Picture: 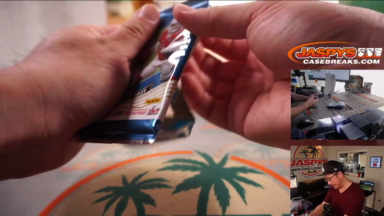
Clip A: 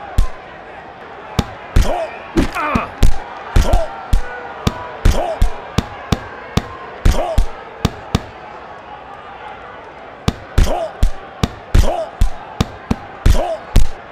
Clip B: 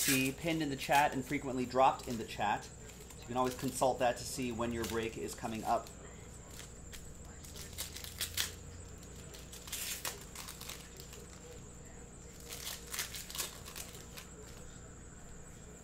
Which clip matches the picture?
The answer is B